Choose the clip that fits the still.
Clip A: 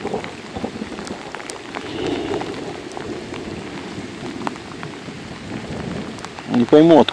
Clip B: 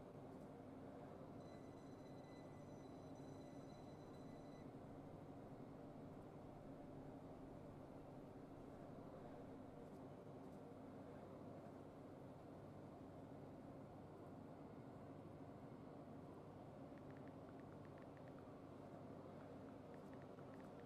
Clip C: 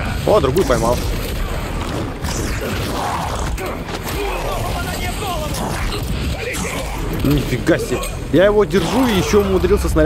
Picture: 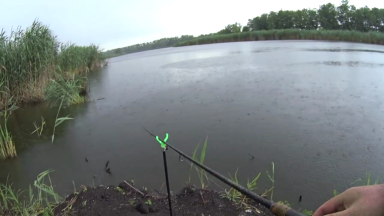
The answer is A